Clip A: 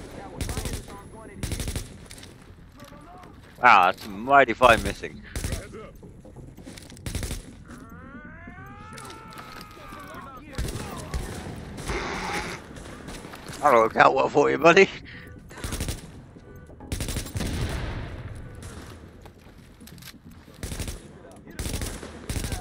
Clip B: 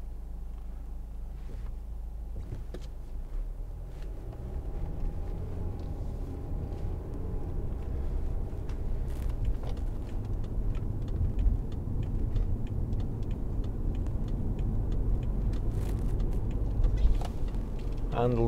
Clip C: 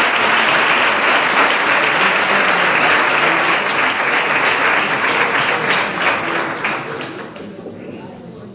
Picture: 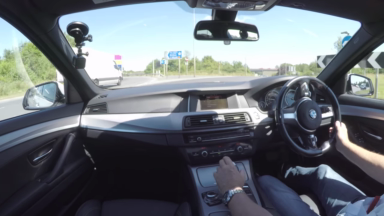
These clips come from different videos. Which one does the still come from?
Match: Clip B